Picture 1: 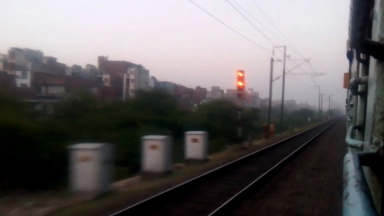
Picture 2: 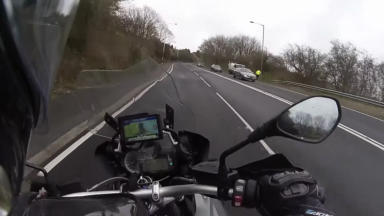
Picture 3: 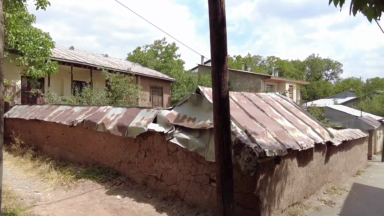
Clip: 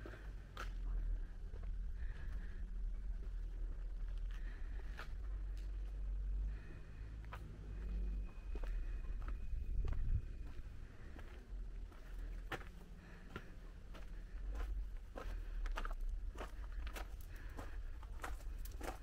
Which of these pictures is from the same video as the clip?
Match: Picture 3